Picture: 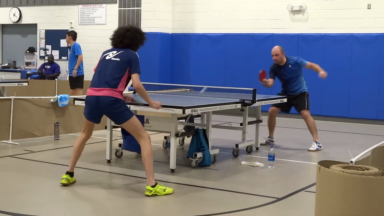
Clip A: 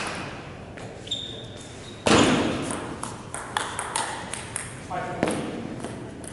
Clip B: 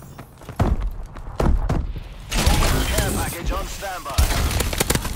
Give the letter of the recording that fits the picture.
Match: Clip A